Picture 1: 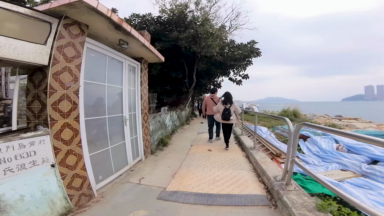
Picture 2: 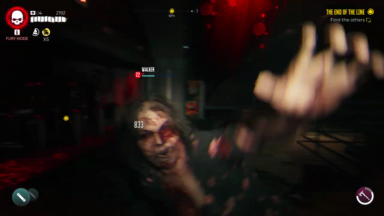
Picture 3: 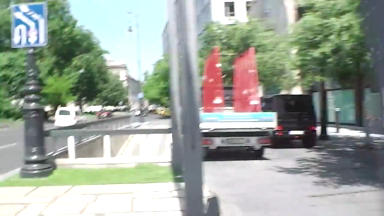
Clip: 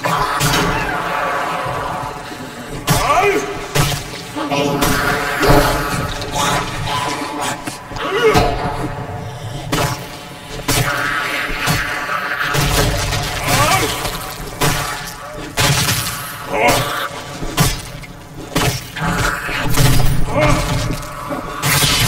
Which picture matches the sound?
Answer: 2